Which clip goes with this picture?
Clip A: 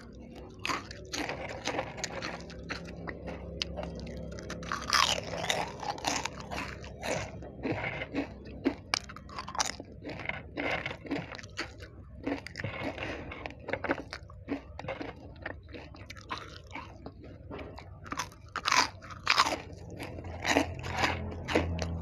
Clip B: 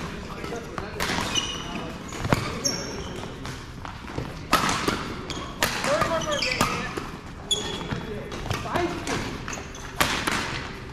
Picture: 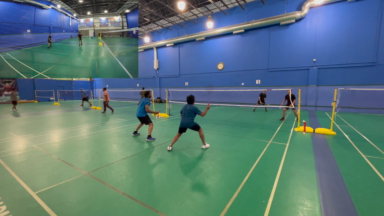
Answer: B